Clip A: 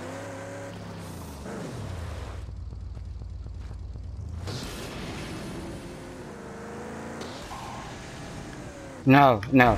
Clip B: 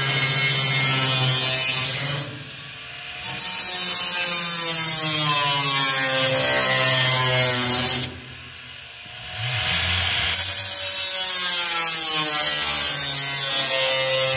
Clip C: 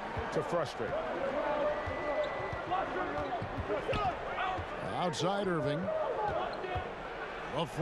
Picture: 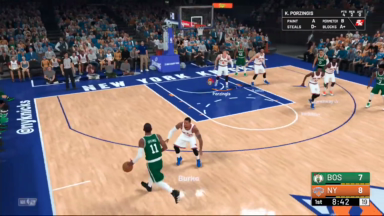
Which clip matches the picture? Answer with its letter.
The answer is C